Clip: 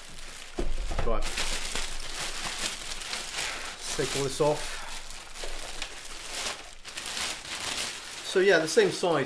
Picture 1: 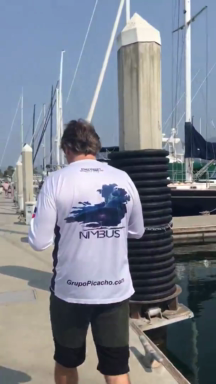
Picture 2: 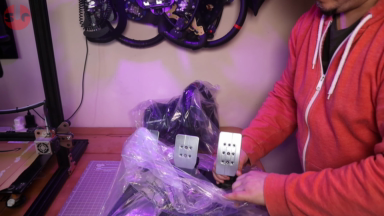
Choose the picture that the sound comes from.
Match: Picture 2